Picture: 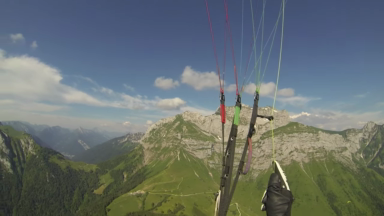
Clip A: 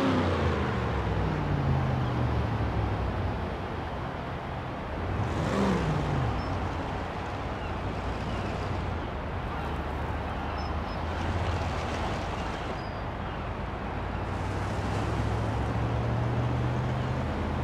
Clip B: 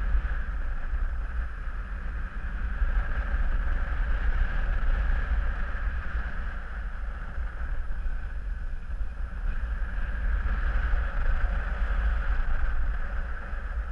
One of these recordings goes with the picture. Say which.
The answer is B